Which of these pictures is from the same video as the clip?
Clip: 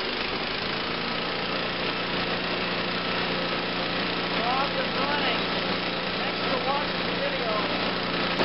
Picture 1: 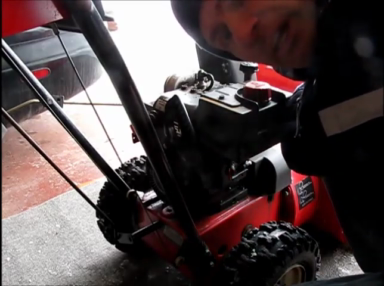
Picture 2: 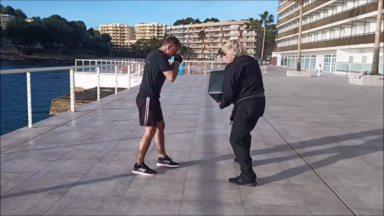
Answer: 1